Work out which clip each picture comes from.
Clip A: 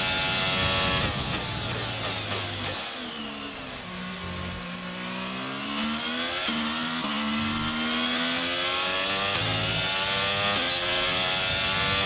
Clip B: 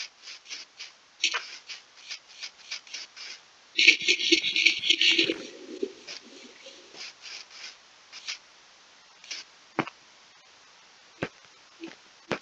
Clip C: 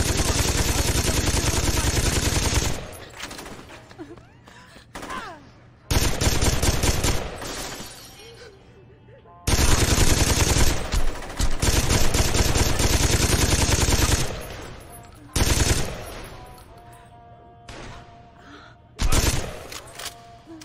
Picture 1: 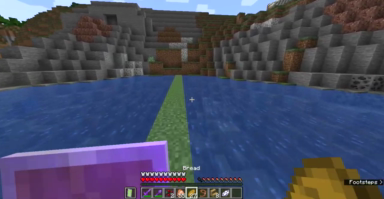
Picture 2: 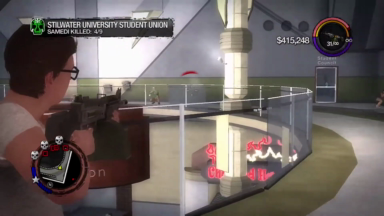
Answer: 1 B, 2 C